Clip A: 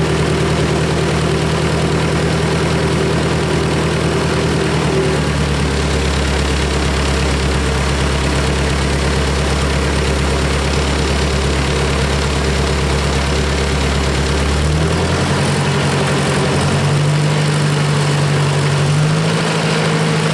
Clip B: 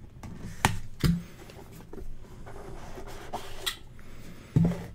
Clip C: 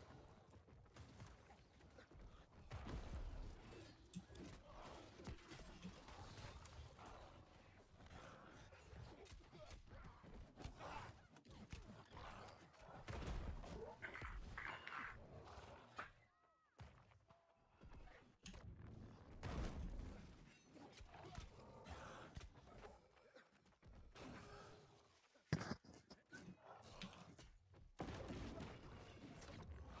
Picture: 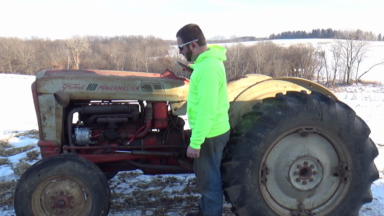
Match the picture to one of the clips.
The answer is A